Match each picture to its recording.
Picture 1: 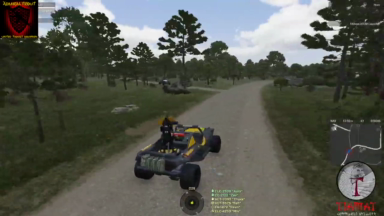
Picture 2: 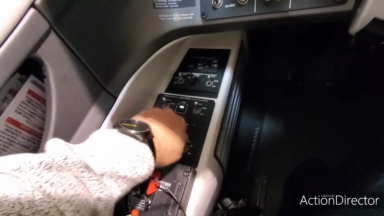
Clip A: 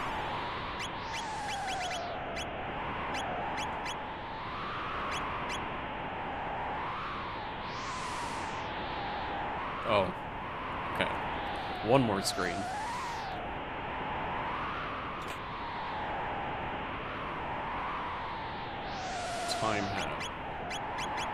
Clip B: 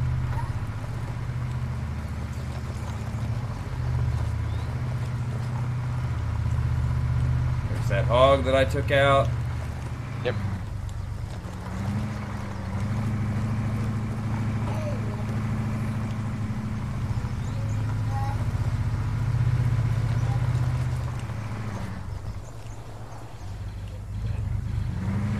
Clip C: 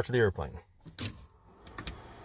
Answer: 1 B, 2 C